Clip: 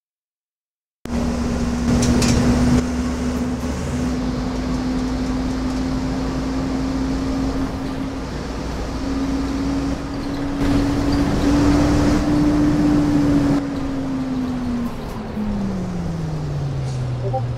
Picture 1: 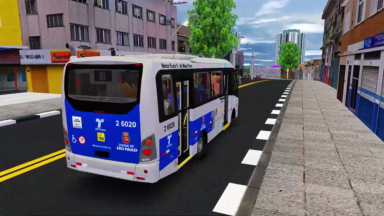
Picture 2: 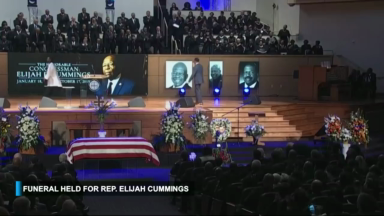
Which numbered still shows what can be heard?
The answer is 1